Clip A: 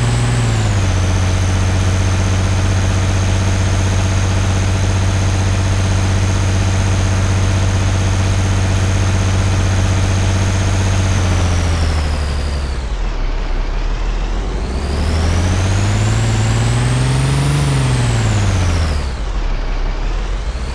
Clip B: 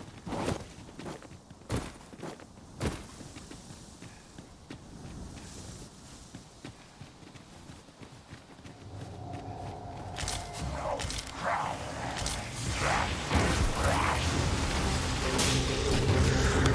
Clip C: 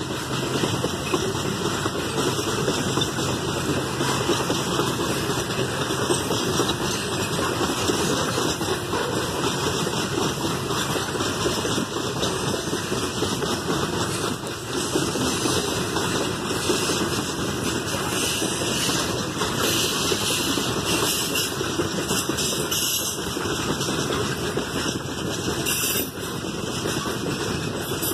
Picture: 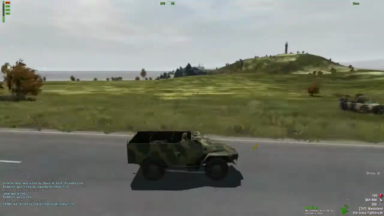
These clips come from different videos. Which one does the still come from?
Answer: A